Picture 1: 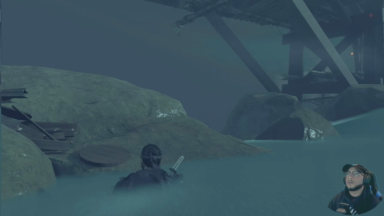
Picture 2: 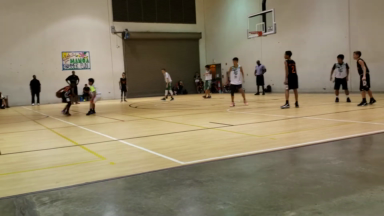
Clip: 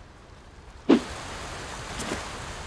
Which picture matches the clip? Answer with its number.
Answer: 1